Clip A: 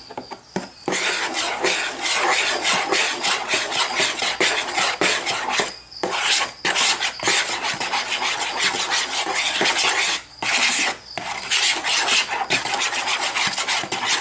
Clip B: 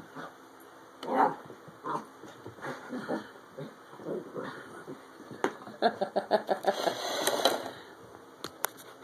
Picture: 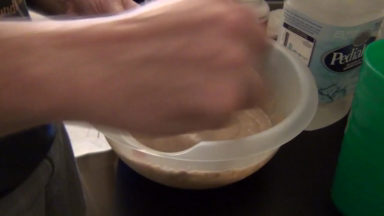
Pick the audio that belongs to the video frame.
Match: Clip A